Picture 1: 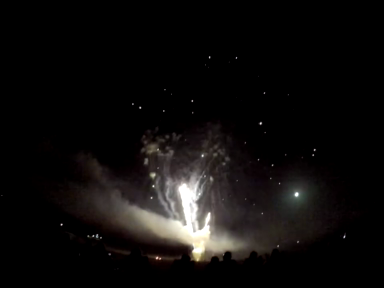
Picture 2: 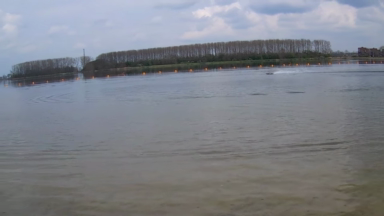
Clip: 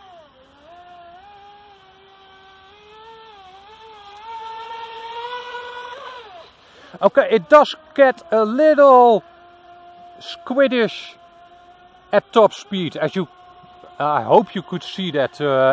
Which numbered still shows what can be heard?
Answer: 2